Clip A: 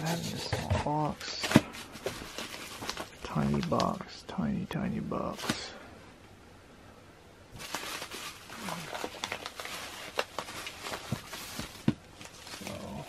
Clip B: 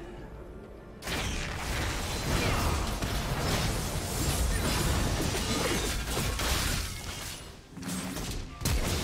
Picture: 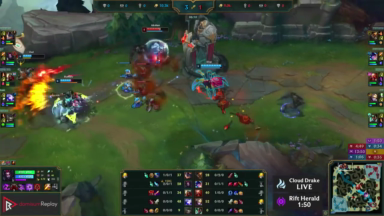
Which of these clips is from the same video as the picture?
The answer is B